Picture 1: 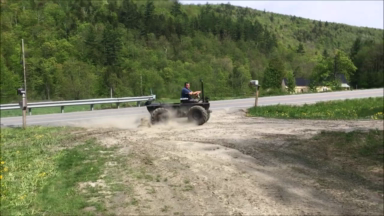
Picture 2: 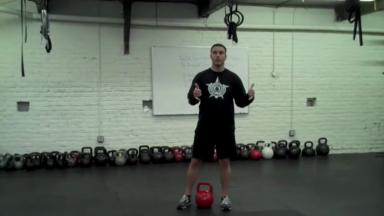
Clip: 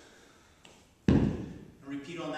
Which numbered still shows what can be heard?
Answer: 2